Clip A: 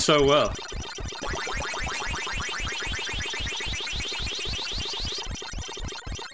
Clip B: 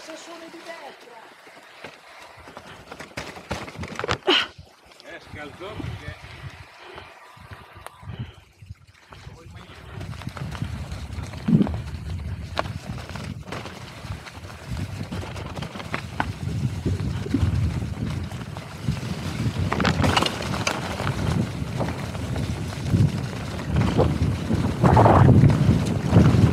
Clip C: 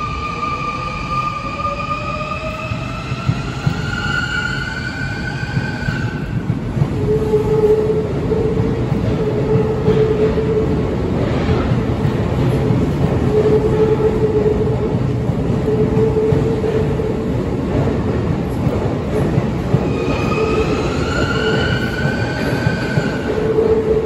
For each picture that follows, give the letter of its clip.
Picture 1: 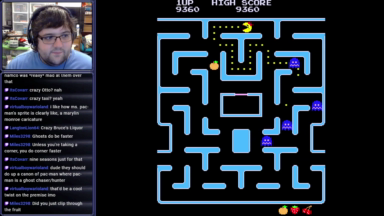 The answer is A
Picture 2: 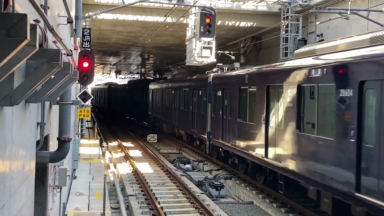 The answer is C